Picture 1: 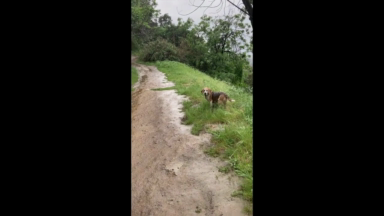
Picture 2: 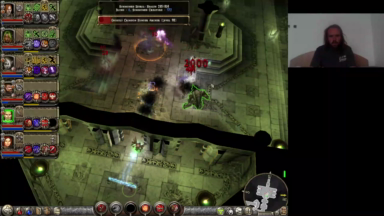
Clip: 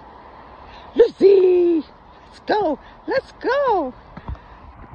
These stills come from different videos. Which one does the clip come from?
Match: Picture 1